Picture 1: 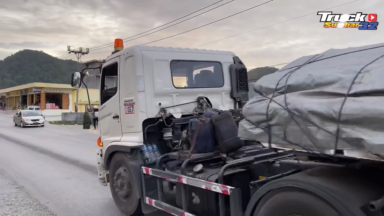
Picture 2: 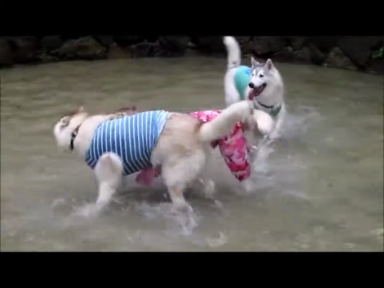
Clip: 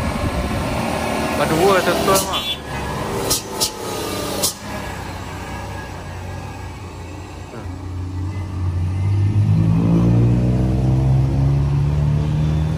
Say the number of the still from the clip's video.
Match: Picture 1